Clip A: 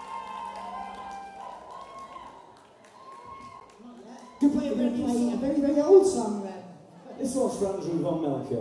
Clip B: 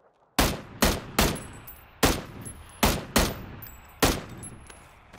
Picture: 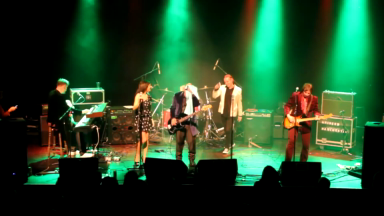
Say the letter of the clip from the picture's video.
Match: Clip A